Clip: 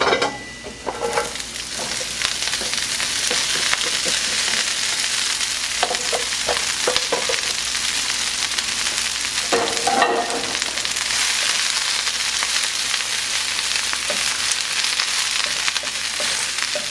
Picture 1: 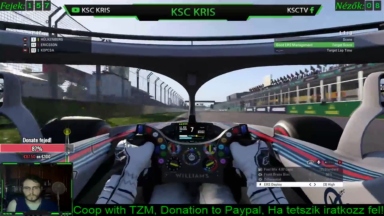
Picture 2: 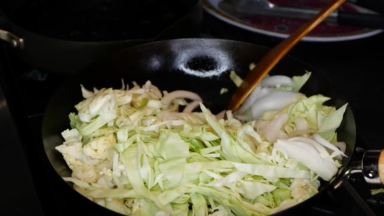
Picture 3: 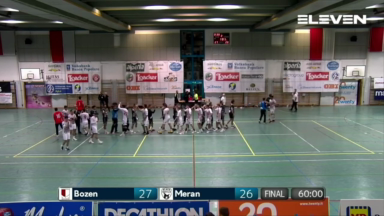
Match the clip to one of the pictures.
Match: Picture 2